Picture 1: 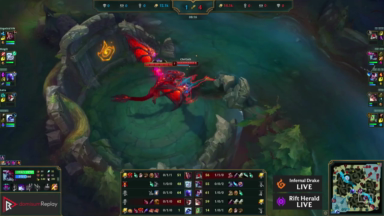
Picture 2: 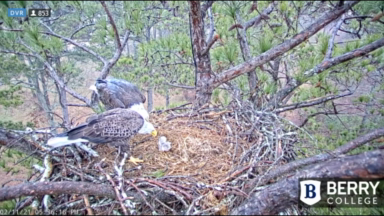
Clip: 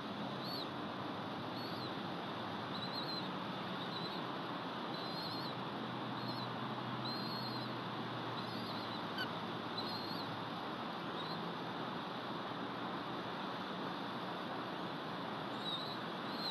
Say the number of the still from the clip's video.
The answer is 2